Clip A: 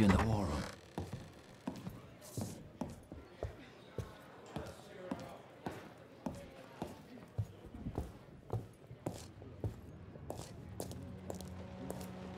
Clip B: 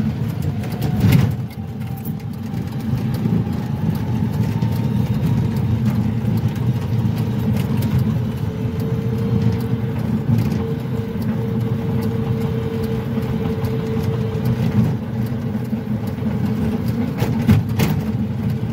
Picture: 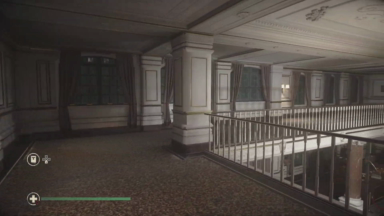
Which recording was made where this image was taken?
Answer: A